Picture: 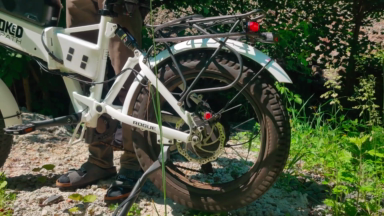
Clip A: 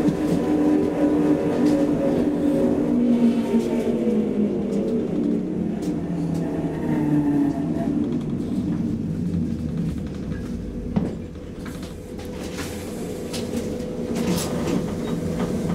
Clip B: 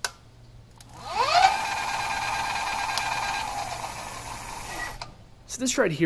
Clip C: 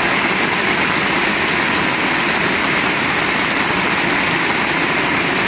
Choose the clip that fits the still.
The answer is B